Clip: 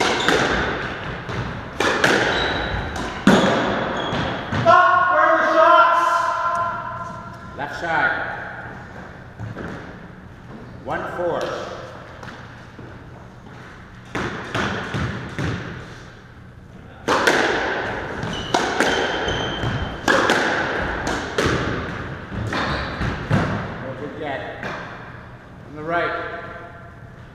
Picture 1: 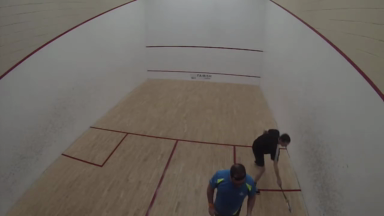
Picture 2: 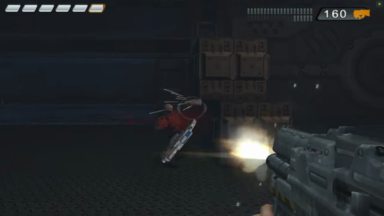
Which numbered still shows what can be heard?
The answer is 1